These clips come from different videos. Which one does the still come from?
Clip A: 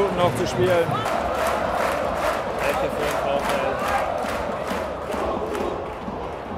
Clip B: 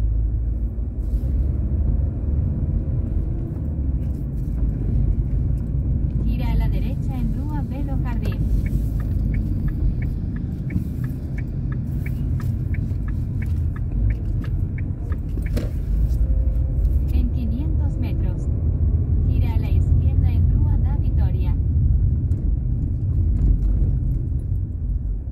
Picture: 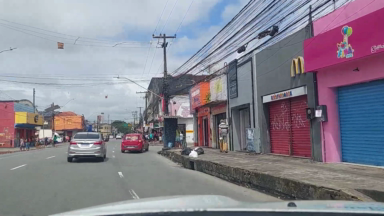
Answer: B